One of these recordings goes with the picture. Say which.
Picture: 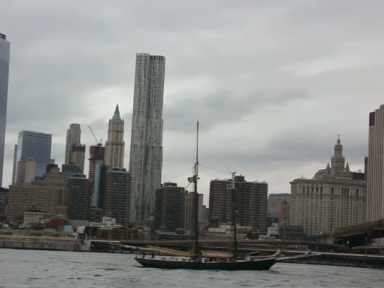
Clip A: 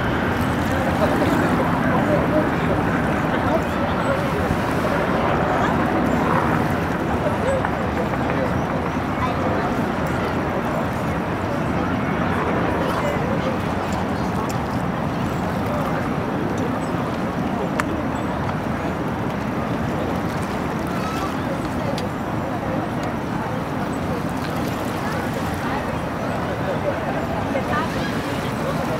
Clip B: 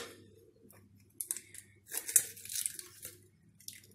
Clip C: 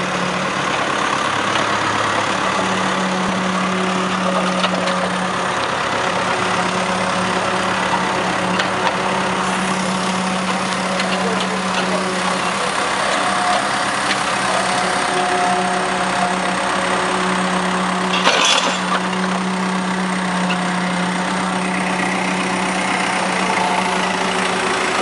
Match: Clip A